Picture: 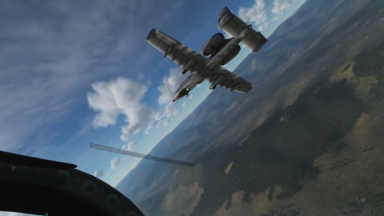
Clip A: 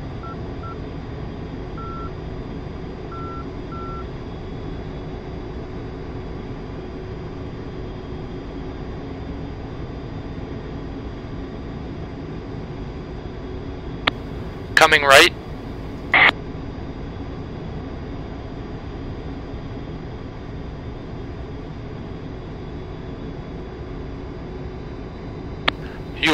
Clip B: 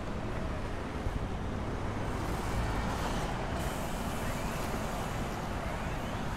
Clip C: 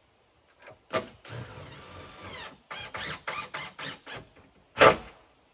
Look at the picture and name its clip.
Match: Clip A